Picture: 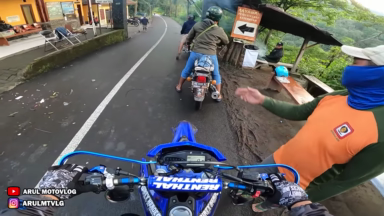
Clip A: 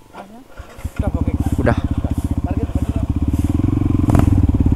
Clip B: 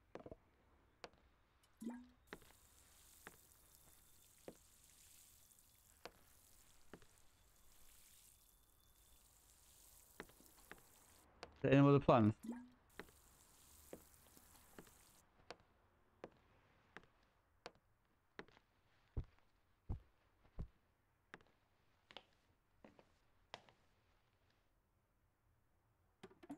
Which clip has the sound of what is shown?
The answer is A